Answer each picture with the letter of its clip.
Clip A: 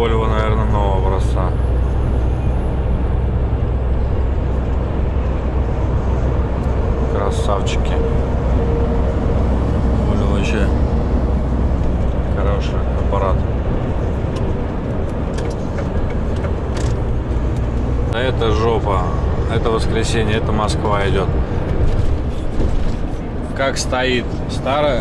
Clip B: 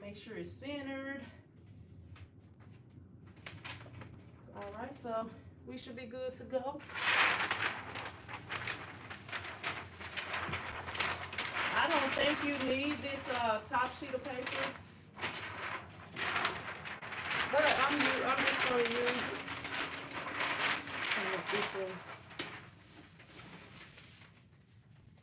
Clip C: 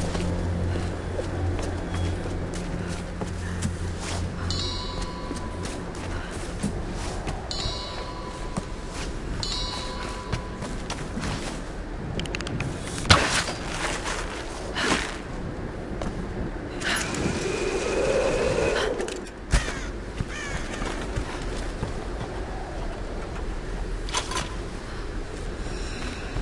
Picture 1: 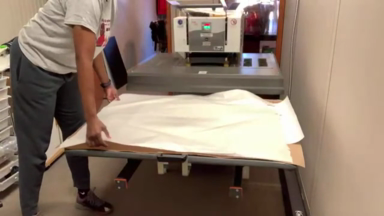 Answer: B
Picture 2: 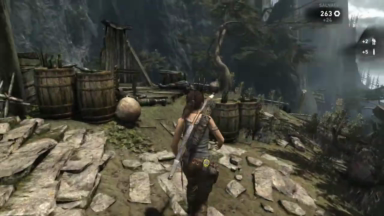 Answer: C